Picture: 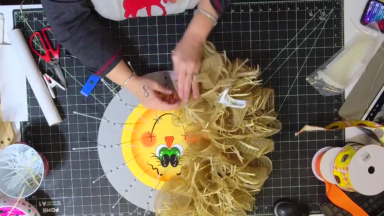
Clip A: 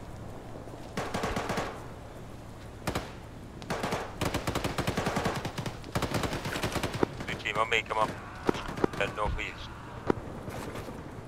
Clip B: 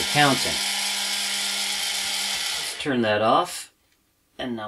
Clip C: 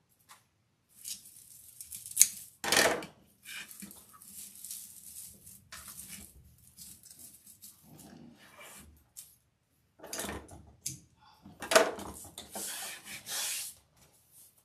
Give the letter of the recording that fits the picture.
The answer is C